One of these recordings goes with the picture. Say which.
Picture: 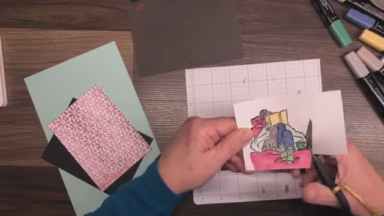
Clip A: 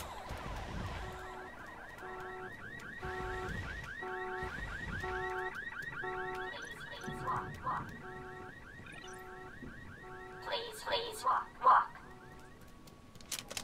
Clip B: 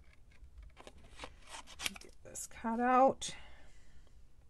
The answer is B